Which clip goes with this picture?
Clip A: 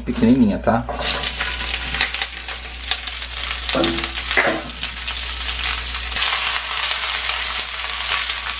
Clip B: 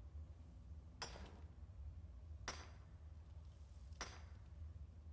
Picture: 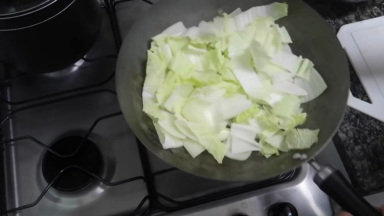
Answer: A